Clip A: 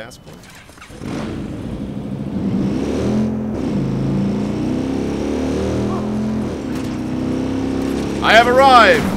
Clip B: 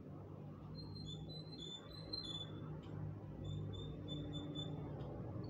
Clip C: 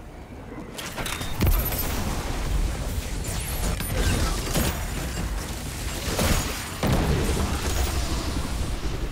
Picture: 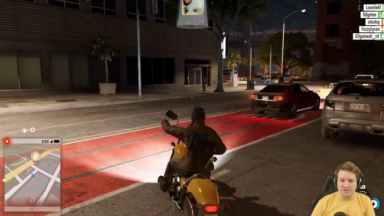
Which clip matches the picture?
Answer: A